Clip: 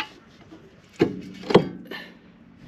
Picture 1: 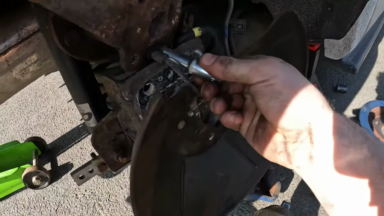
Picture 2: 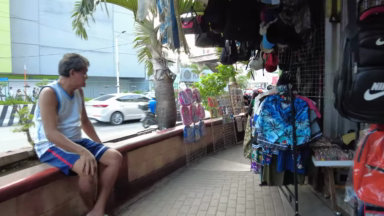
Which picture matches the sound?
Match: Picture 1